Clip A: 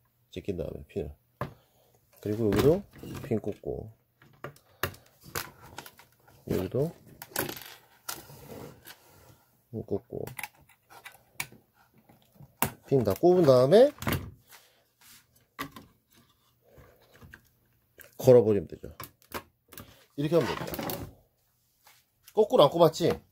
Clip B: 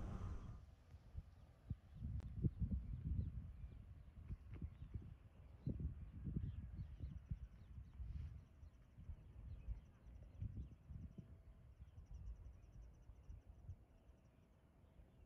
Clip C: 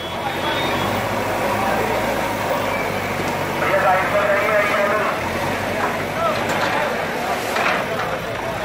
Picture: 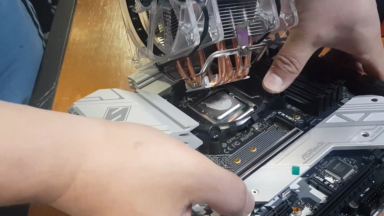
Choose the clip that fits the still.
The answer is A